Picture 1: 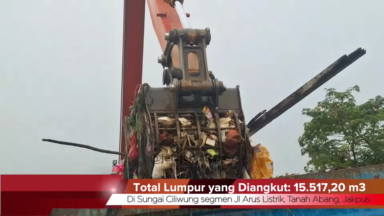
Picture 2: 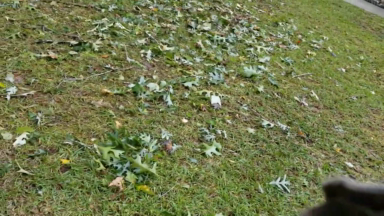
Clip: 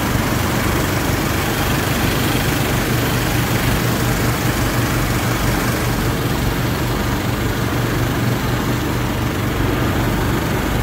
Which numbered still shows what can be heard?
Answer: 2